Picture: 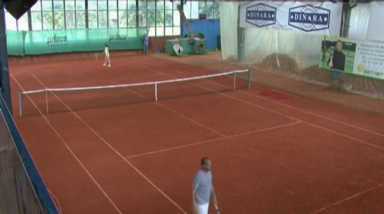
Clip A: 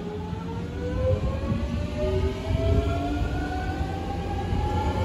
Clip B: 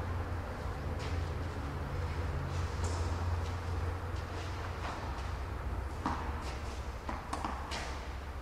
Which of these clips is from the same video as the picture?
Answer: B